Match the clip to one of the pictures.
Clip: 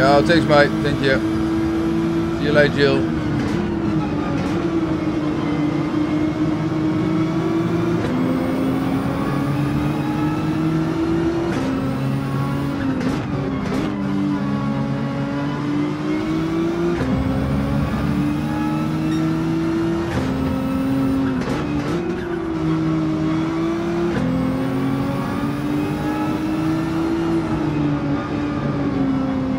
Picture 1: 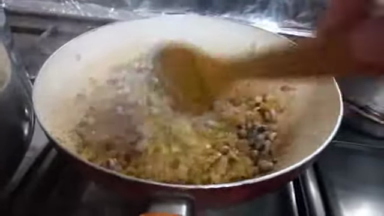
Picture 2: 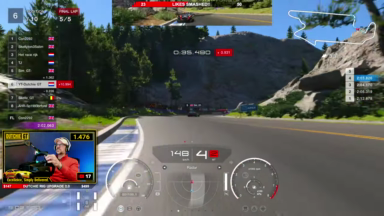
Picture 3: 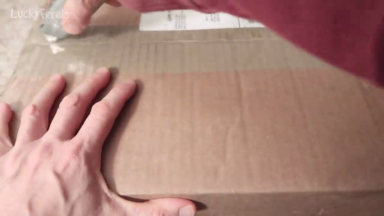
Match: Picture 2